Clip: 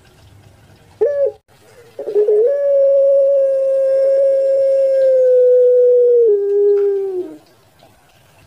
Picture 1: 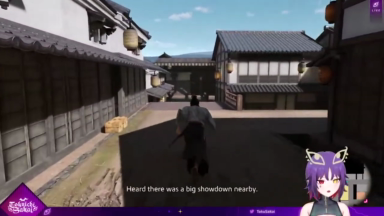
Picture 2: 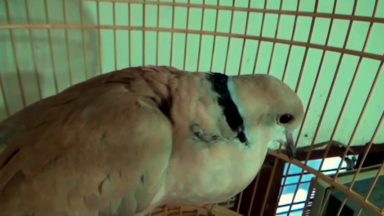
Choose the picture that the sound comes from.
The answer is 2